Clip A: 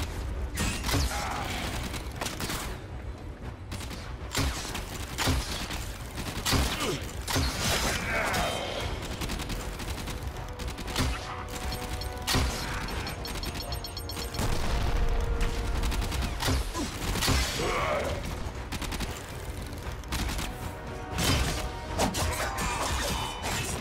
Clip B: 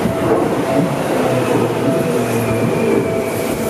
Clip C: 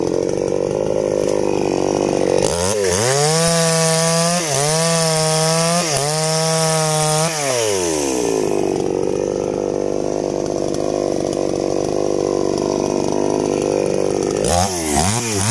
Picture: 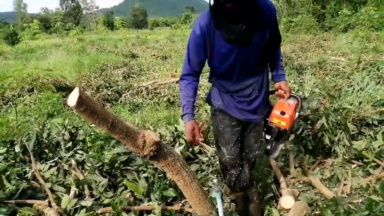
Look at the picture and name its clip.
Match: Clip C